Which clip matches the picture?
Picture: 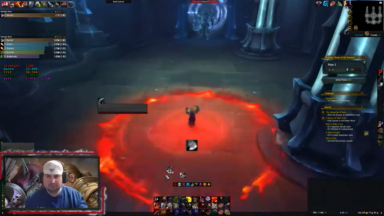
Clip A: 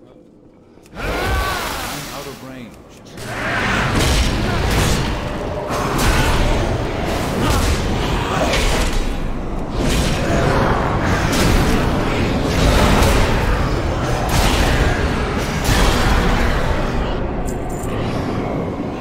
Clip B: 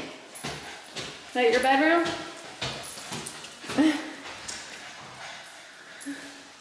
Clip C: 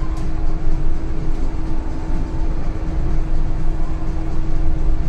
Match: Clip A